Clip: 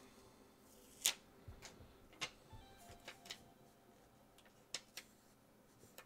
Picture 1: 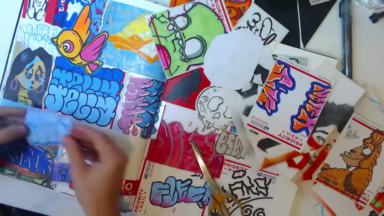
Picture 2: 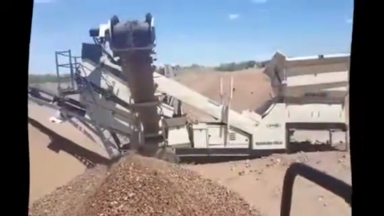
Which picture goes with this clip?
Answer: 1